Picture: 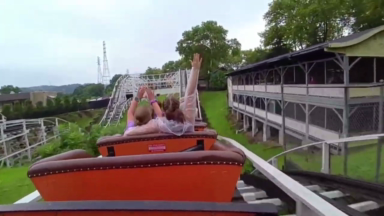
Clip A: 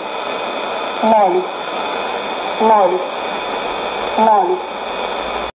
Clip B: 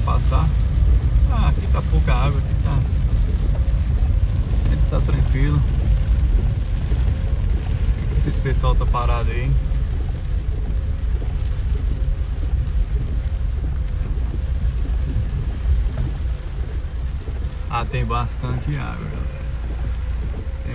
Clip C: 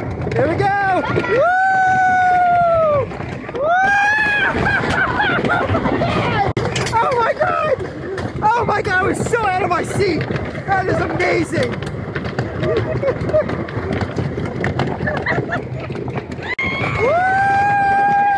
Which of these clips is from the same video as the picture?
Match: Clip C